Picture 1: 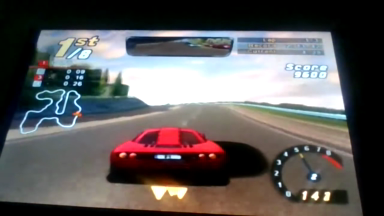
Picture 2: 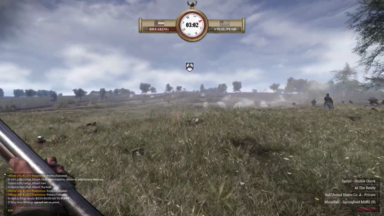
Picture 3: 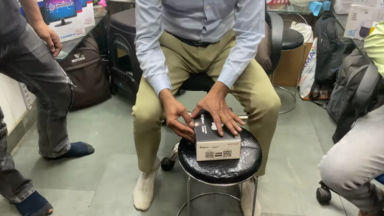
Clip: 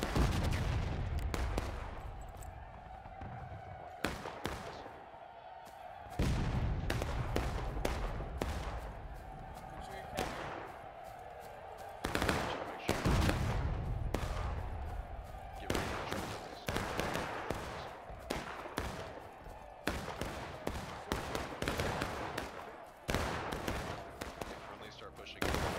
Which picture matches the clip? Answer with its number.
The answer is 2